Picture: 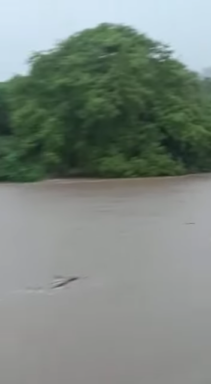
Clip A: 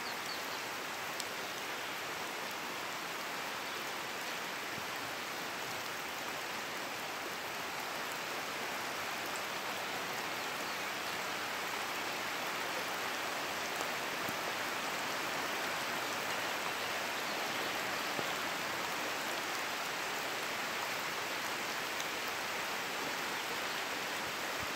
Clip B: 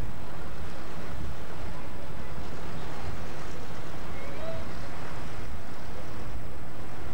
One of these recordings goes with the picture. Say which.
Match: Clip A